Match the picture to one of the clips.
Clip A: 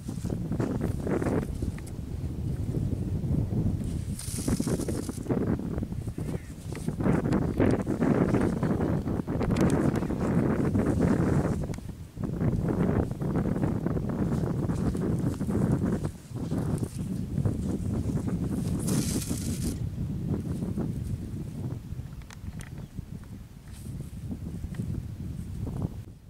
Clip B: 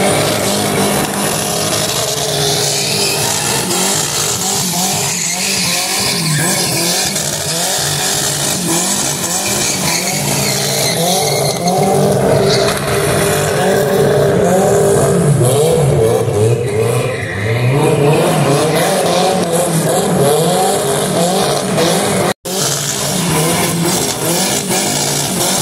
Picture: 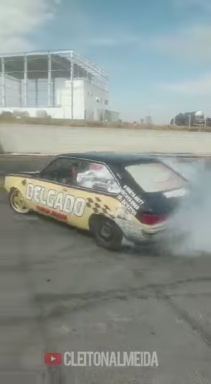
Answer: B